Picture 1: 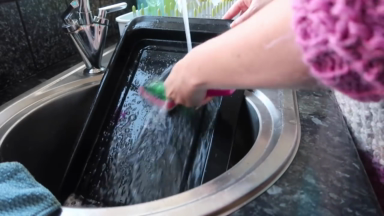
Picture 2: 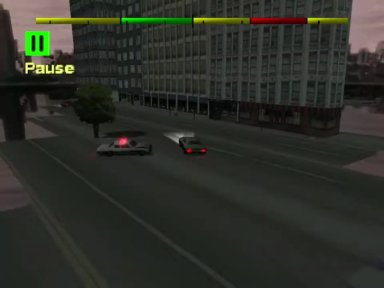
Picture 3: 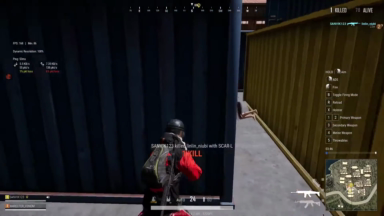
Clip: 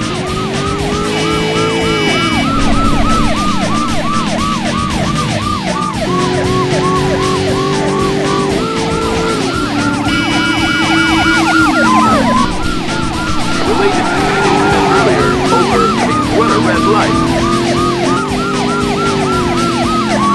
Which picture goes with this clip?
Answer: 2